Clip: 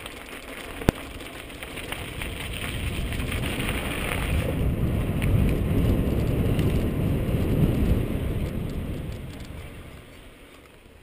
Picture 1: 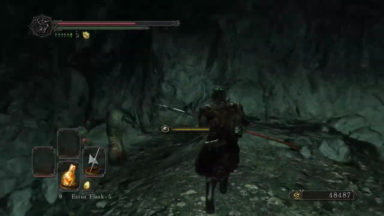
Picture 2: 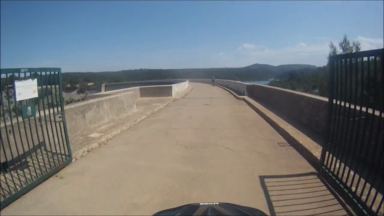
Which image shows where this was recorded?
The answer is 2